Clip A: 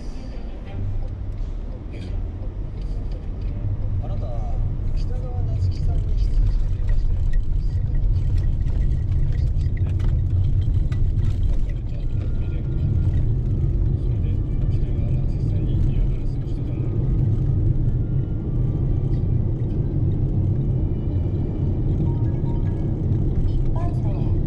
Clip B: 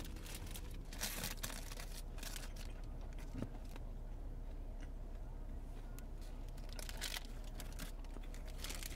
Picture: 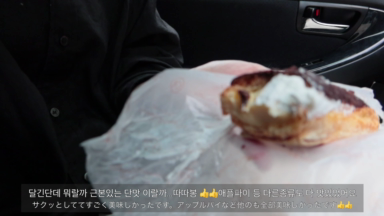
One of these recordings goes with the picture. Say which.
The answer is B